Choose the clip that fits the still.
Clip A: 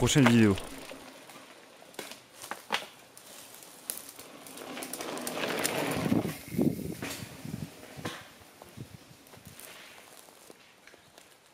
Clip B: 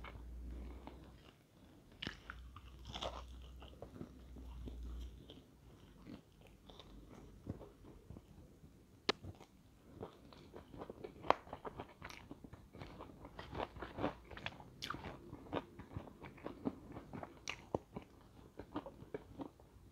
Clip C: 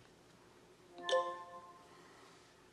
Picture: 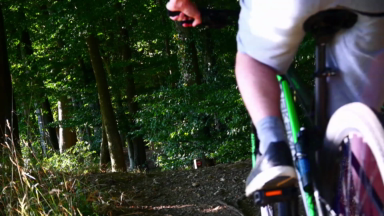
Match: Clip A